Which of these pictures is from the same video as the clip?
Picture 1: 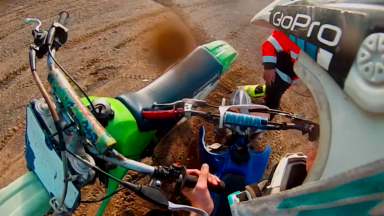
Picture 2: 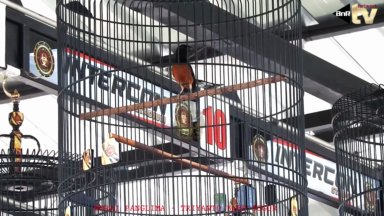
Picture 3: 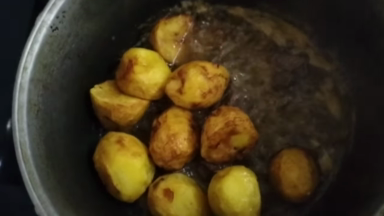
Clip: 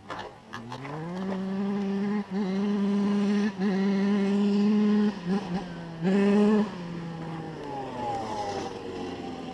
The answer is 1